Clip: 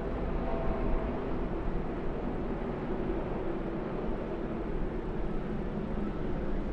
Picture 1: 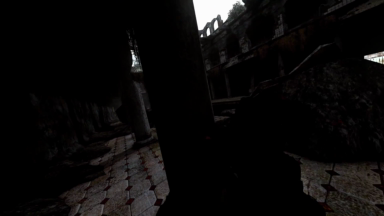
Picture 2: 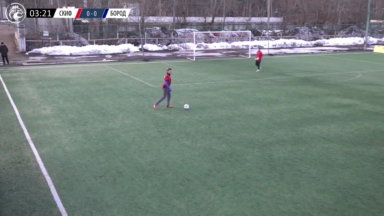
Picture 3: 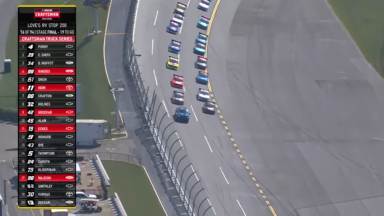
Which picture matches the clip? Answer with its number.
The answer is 3